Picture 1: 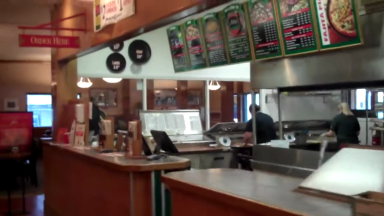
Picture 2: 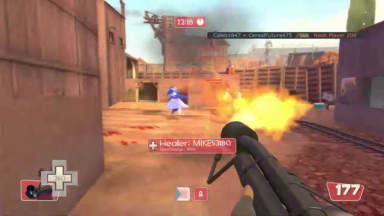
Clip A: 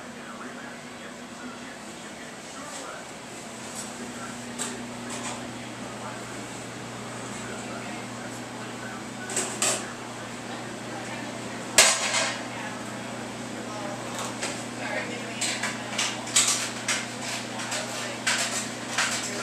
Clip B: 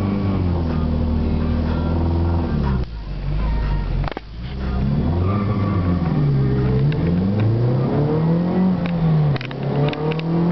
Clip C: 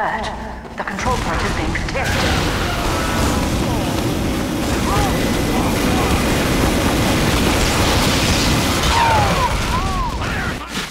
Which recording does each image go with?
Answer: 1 A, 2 C